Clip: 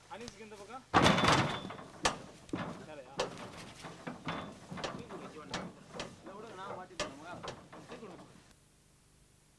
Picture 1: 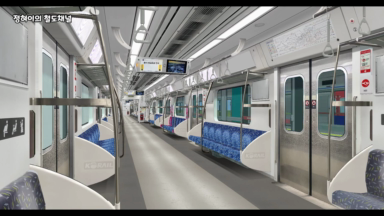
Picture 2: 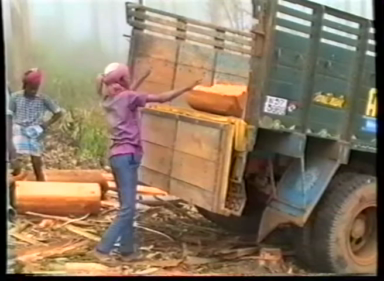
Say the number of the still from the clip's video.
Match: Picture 2